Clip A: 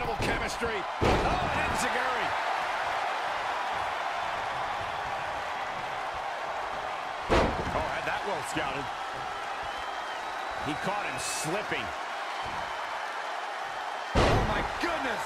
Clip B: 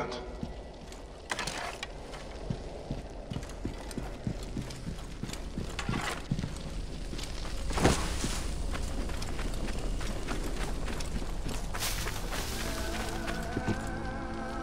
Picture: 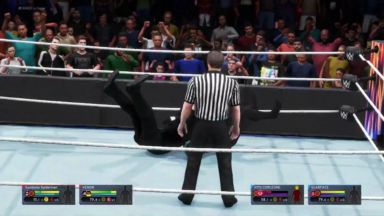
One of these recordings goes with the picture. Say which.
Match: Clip A